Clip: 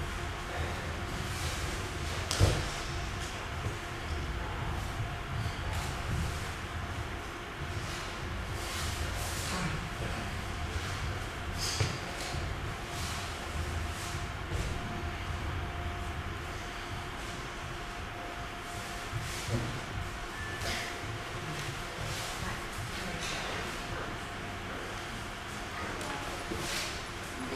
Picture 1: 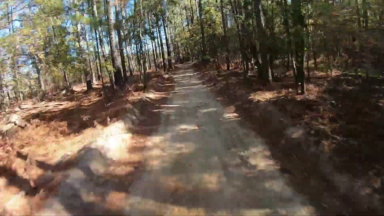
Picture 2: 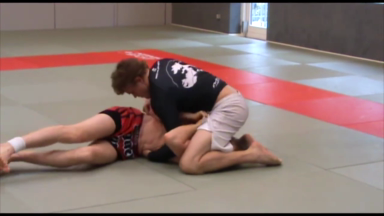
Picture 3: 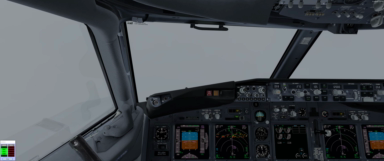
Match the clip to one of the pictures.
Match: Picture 2